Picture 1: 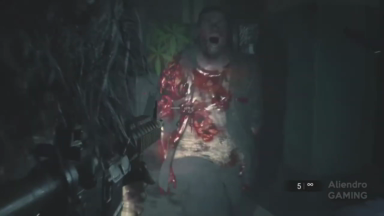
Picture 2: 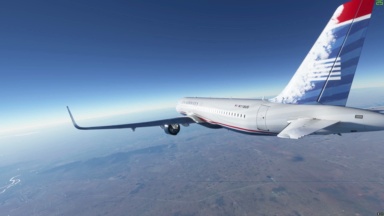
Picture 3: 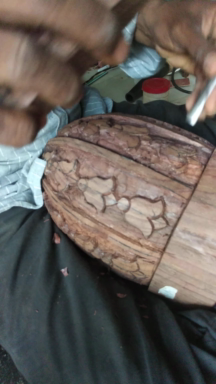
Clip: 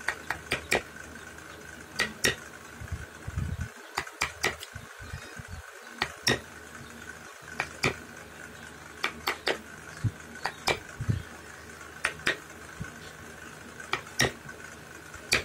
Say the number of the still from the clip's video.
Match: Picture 3